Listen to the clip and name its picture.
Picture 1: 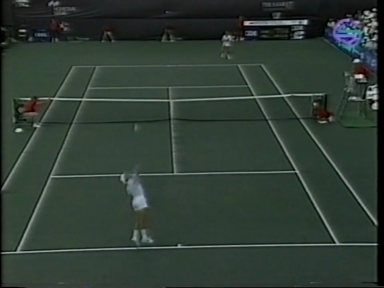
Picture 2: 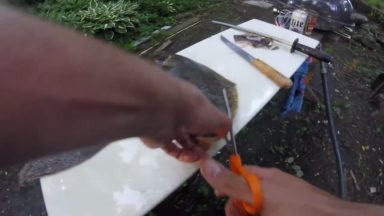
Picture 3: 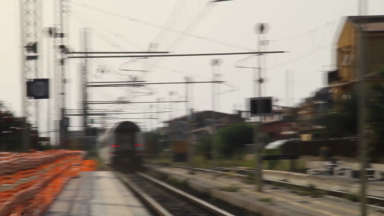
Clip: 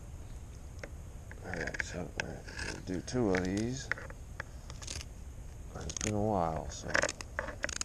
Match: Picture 2